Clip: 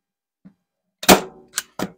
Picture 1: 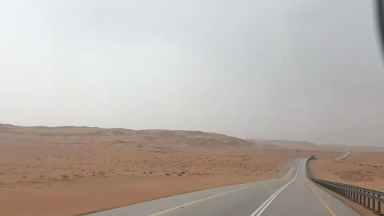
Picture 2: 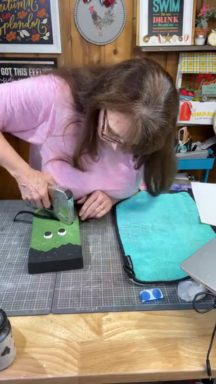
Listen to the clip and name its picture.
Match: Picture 2